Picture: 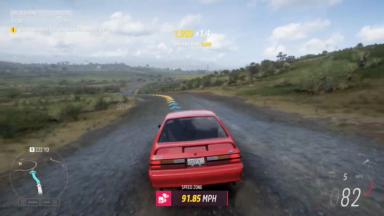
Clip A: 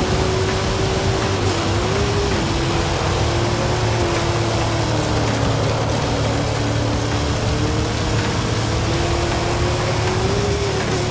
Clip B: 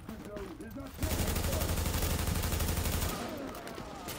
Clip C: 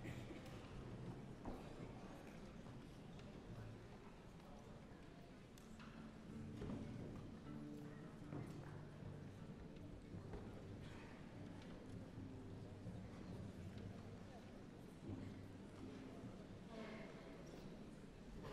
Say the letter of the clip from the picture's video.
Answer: A